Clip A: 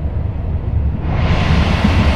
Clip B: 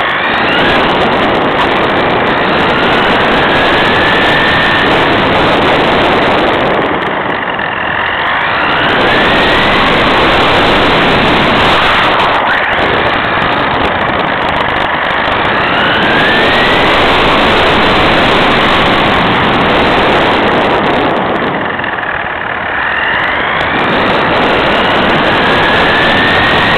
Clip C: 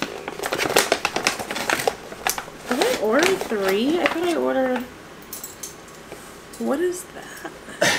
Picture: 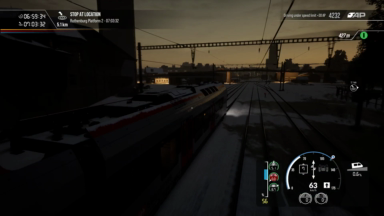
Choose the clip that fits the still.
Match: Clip A